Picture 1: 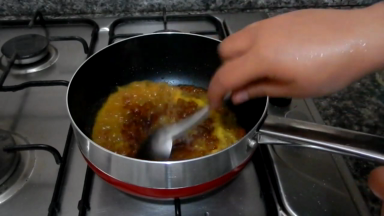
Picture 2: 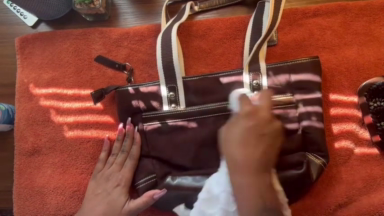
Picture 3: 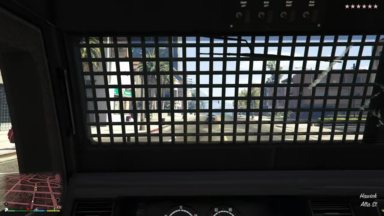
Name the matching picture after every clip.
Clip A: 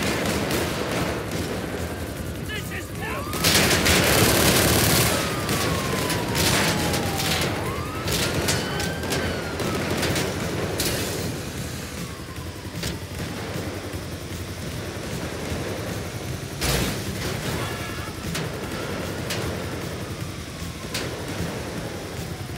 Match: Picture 3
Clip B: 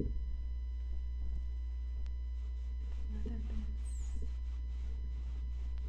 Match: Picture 2